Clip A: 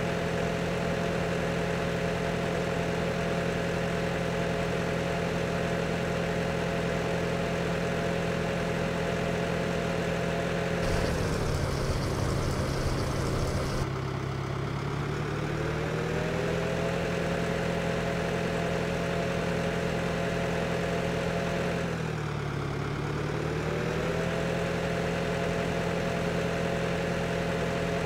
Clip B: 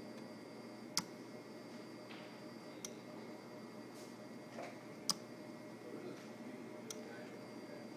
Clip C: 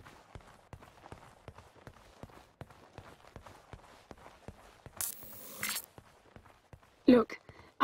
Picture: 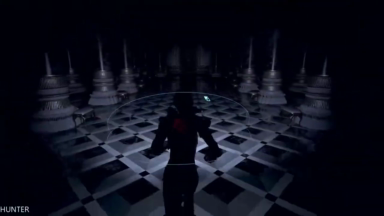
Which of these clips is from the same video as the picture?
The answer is C